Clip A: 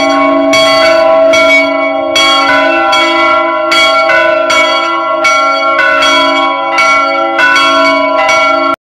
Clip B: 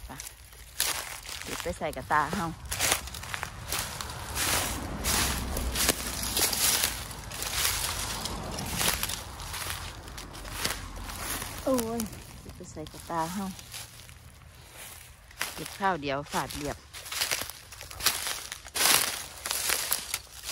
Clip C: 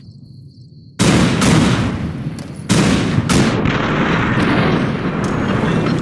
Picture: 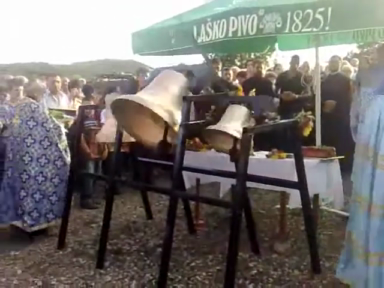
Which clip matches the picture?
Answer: A